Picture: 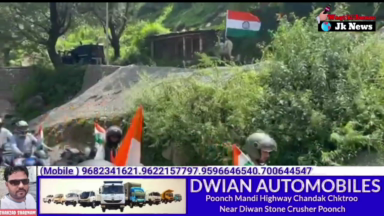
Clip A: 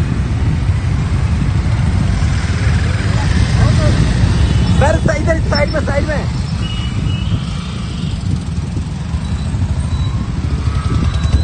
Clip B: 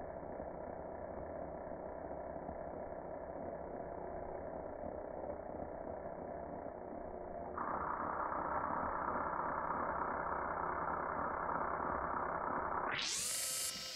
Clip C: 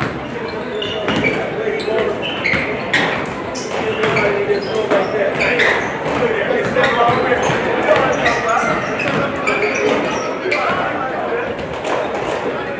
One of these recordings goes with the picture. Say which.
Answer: A